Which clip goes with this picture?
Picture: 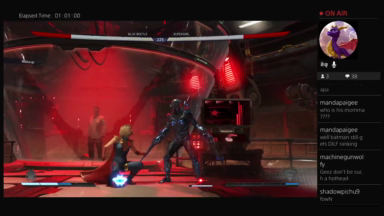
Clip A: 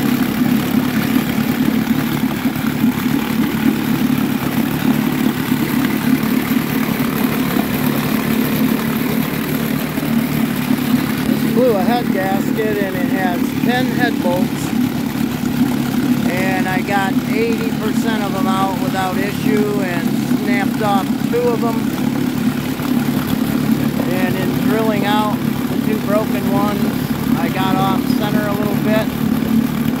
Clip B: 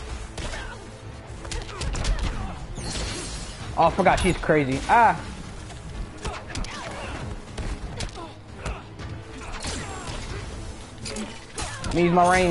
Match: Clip B